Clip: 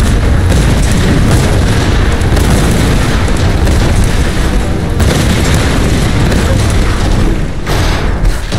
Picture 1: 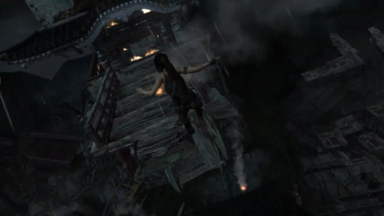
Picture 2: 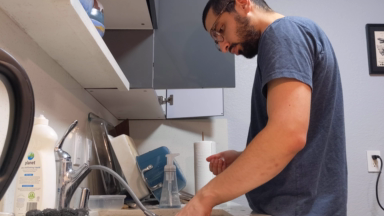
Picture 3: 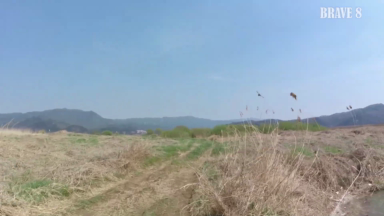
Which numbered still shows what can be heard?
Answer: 1